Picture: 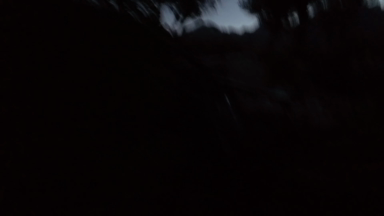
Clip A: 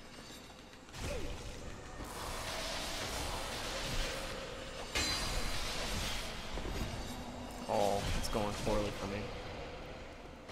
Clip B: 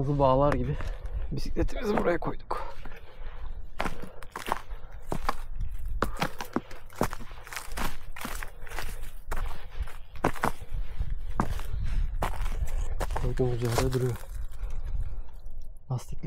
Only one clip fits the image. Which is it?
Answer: B